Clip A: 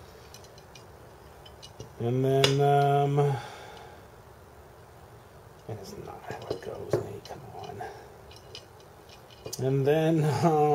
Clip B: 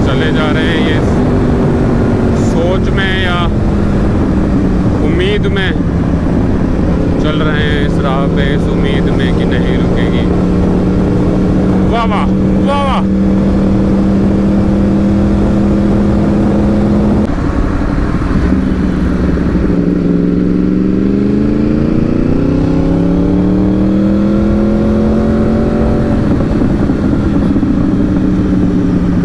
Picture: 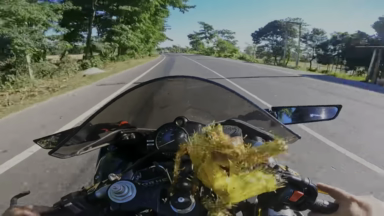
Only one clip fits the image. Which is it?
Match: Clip B